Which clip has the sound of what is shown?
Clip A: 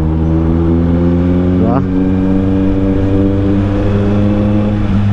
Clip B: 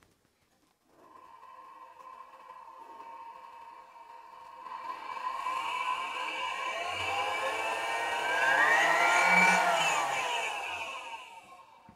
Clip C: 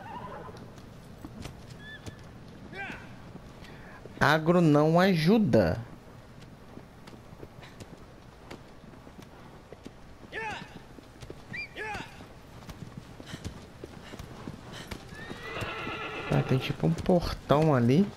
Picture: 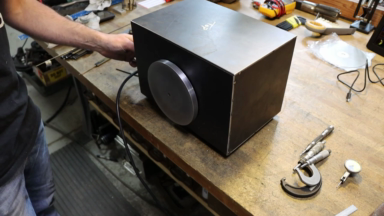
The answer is B